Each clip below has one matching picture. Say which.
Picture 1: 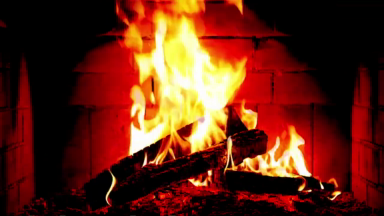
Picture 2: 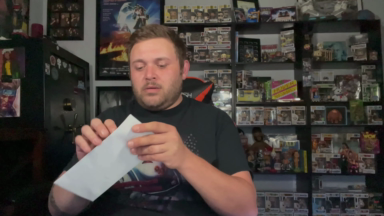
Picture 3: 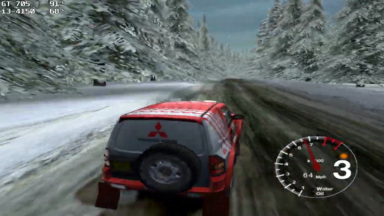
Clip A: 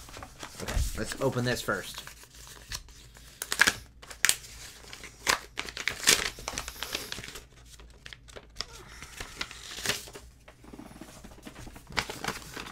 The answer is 2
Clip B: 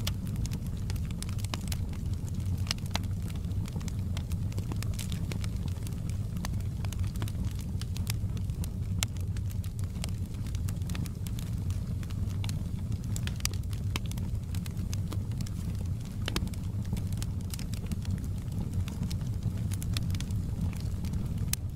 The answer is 1